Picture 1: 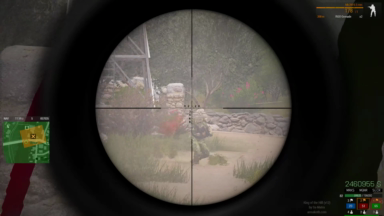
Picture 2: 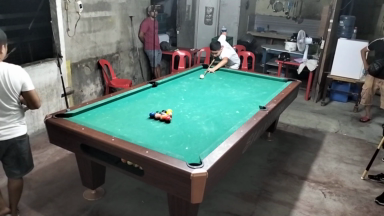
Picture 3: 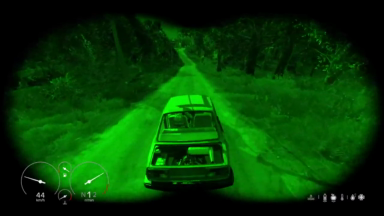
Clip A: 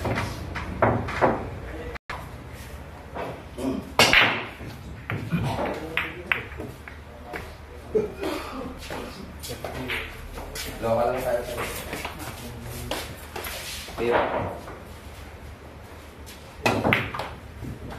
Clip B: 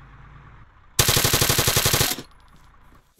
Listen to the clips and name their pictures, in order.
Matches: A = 2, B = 1